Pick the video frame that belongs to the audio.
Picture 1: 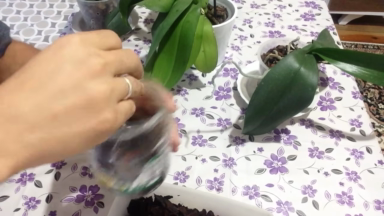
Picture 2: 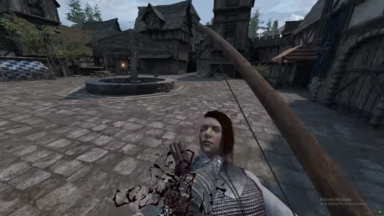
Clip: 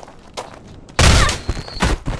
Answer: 2